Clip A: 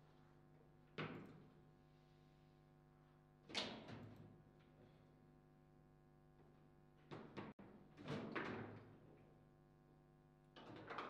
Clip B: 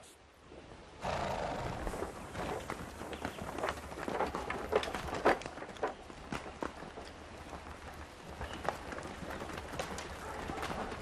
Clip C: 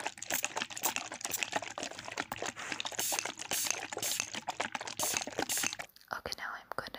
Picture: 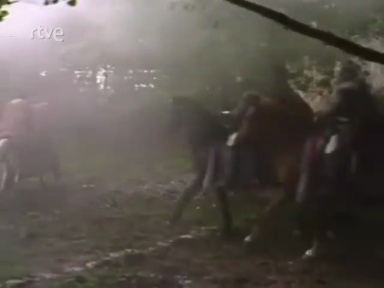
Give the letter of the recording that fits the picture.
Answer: B